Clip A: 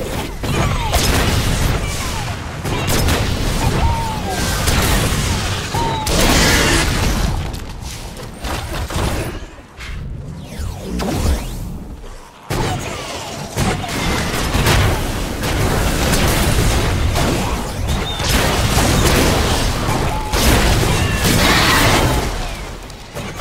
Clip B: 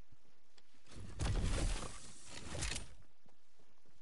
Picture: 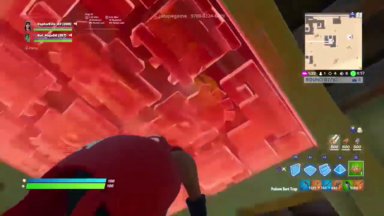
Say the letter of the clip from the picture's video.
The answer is B